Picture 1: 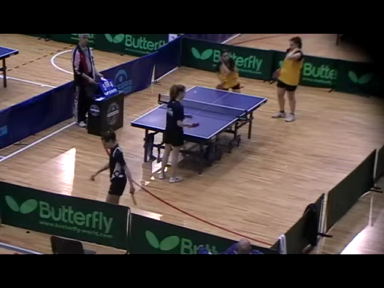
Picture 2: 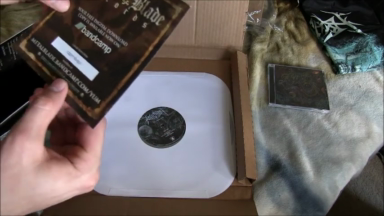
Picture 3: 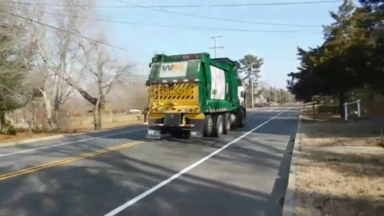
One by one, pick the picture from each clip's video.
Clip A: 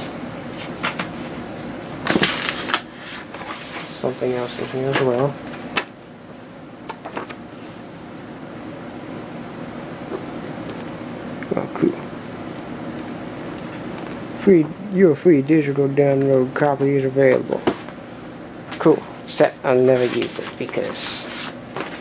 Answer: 2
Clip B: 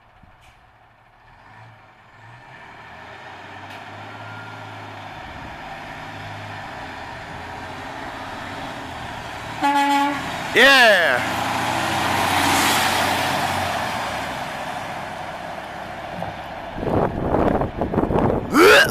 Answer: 3